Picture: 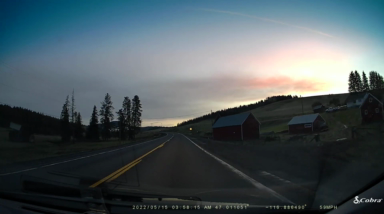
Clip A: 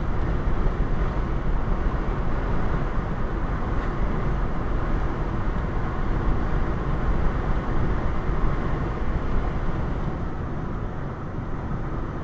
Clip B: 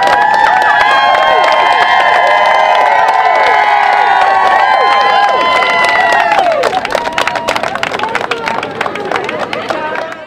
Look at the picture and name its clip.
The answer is A